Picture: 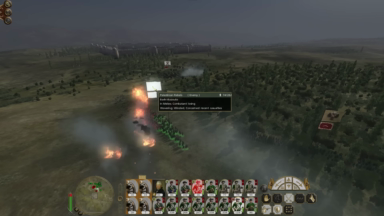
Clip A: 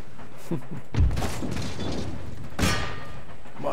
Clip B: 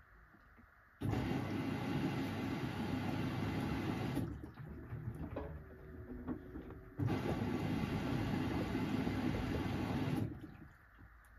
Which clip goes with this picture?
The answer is A